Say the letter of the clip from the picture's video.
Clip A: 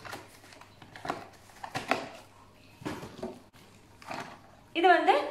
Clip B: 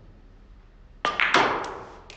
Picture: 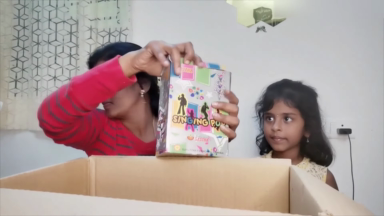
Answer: A